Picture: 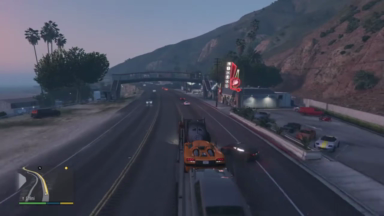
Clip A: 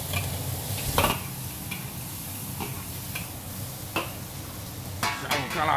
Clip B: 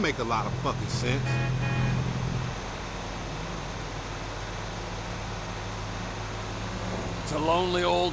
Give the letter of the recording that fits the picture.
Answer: B